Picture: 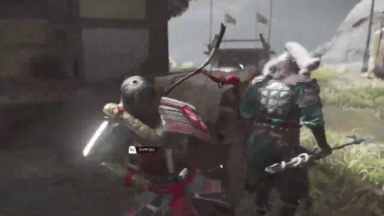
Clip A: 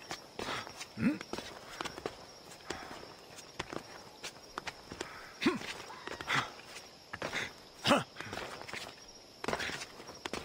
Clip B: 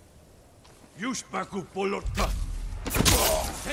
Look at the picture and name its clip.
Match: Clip B